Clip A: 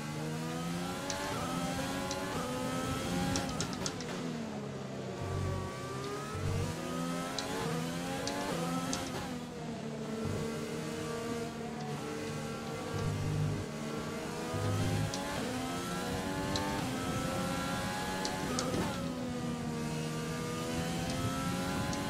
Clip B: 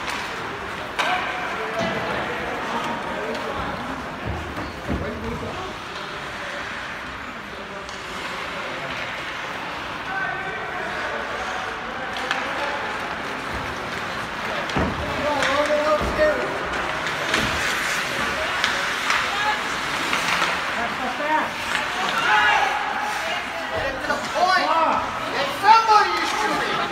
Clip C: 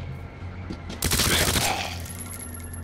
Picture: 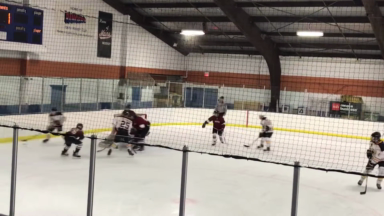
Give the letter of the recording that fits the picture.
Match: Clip B